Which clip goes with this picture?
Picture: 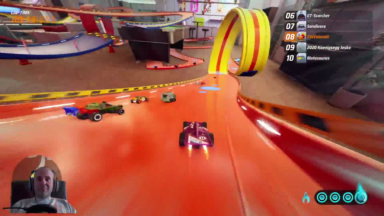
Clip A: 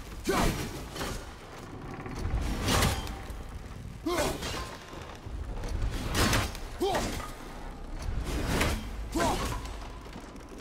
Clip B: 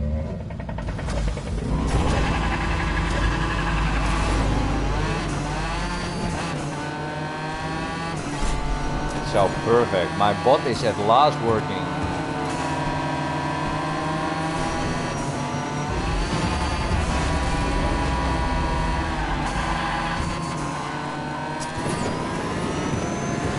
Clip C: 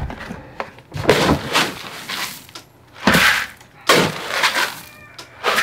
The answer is B